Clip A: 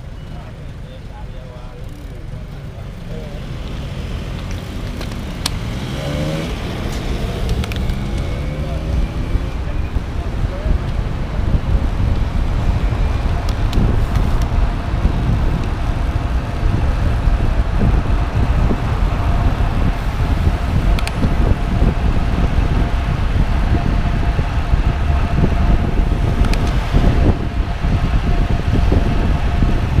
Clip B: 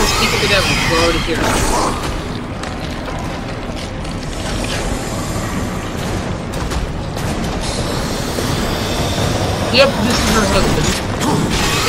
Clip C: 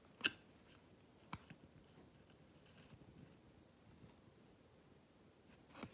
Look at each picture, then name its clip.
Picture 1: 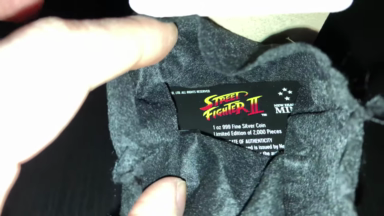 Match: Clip C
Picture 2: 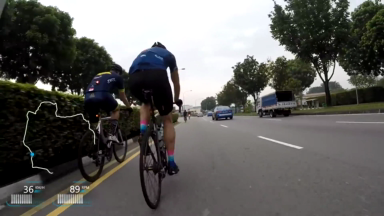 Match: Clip A